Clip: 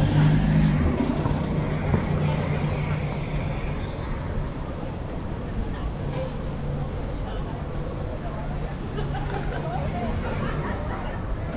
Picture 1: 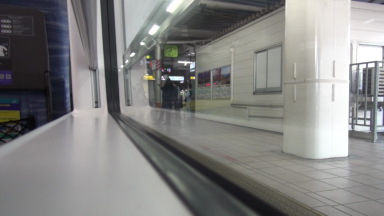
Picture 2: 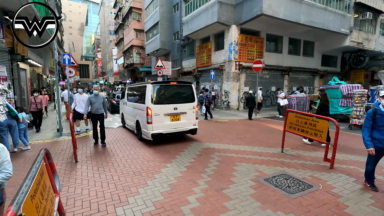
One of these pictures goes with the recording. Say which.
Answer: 2